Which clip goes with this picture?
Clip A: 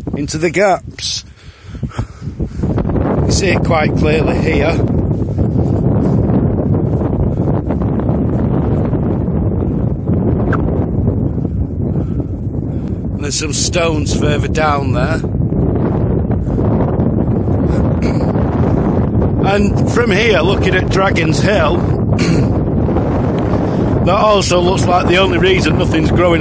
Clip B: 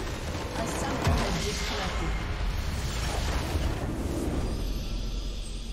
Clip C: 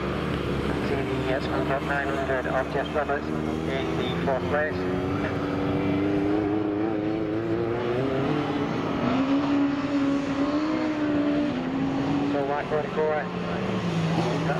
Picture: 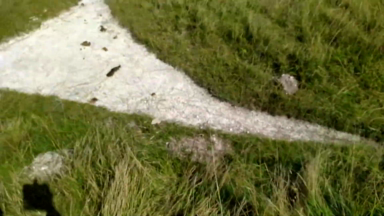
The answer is A